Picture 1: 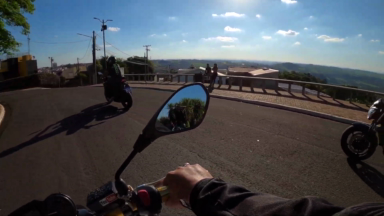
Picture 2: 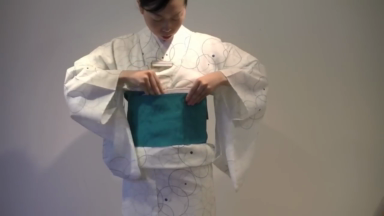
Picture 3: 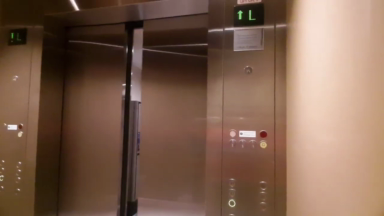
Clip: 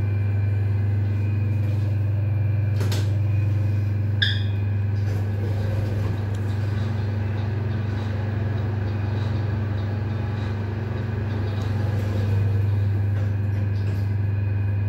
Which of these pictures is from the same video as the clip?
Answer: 3